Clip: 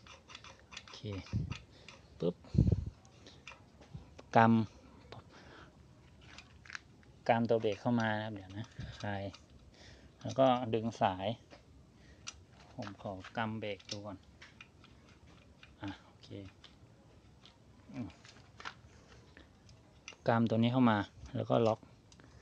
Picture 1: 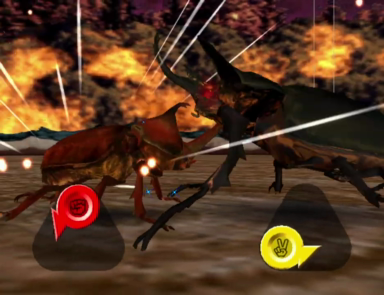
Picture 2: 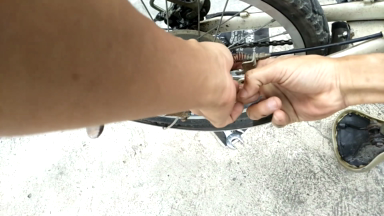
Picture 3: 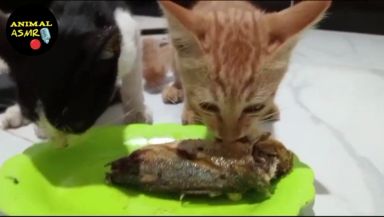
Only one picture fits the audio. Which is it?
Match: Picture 2